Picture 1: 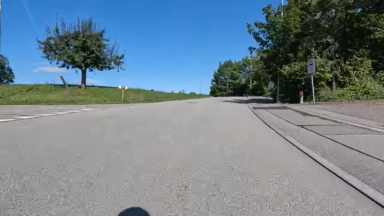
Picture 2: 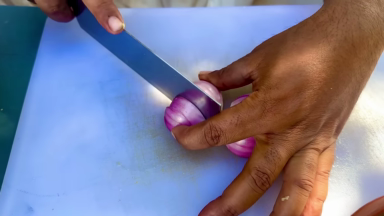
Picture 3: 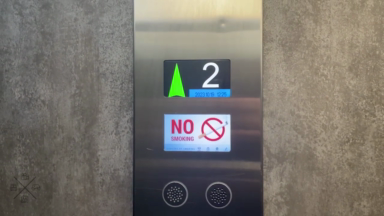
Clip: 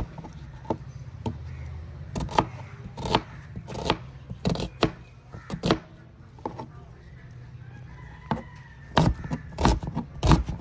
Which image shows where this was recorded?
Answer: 2